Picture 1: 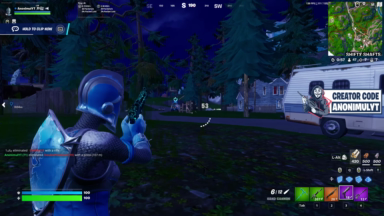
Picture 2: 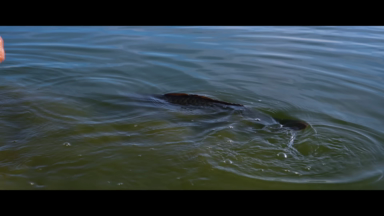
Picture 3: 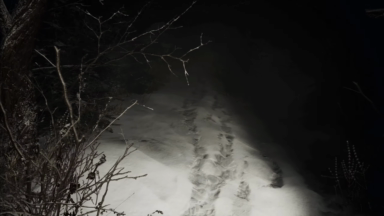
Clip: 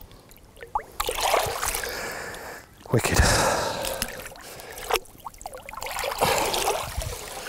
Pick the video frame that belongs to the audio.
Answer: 2